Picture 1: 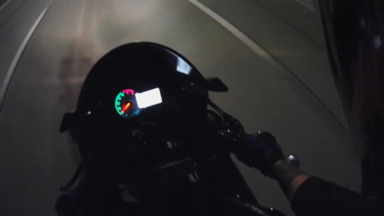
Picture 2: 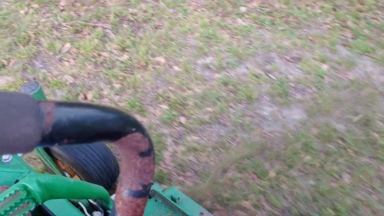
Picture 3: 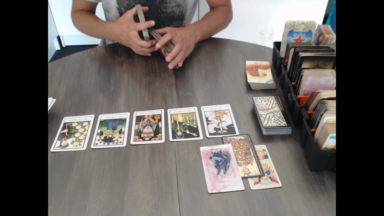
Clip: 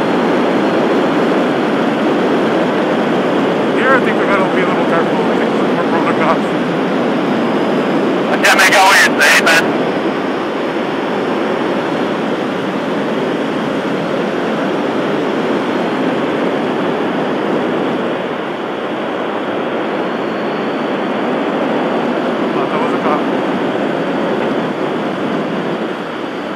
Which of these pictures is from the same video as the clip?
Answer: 1